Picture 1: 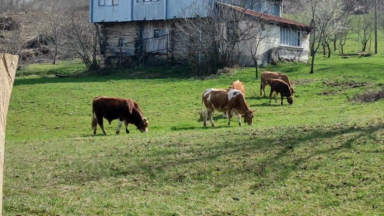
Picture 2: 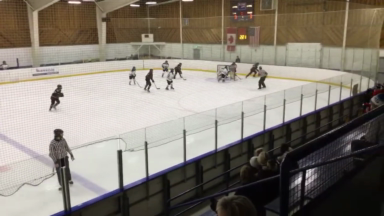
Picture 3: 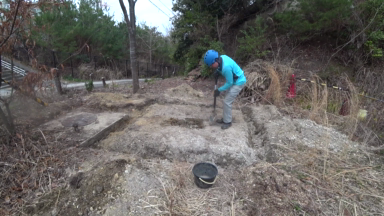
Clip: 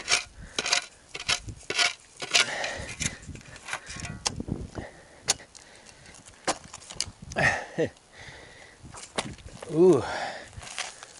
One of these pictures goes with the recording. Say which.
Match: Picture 3